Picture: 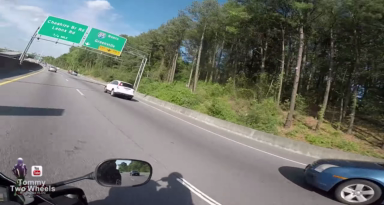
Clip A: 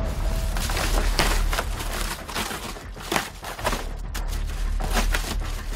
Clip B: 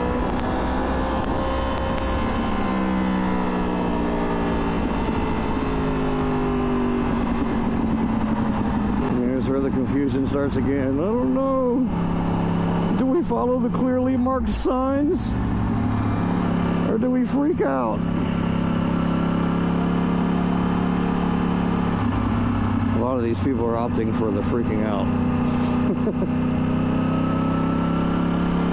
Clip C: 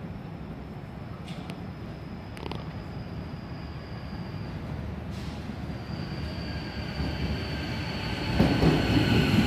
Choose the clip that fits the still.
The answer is B